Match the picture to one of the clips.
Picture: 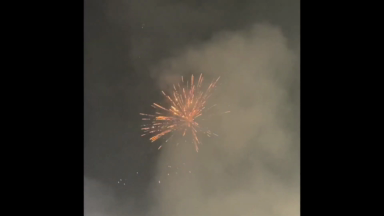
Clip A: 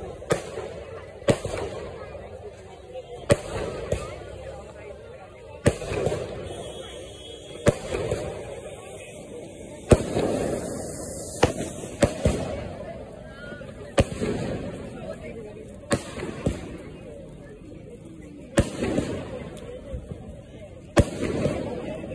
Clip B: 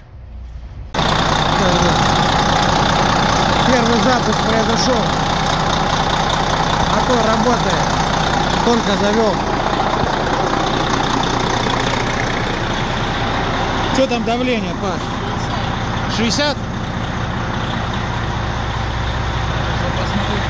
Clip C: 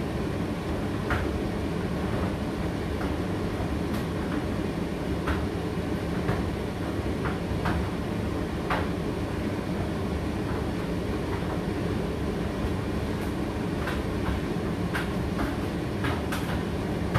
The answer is A